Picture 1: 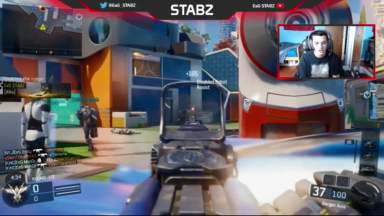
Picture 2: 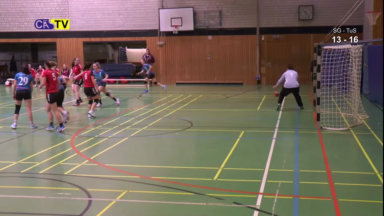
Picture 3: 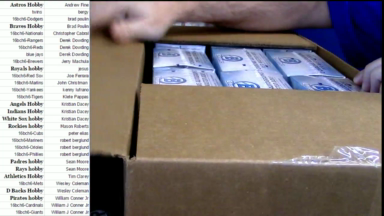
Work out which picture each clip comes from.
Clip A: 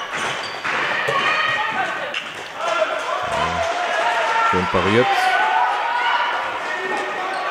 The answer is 2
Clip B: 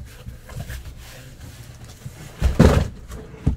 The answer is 3